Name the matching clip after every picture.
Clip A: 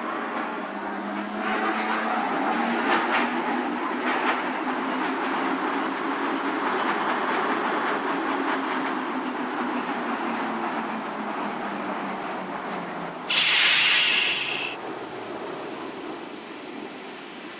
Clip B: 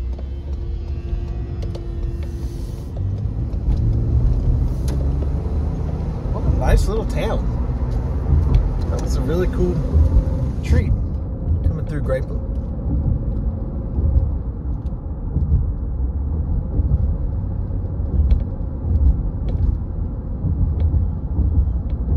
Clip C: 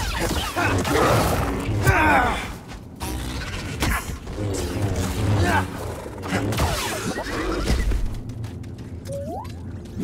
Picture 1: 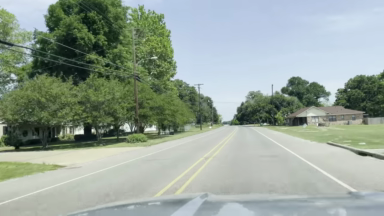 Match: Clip B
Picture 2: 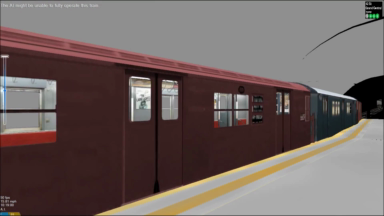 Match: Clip A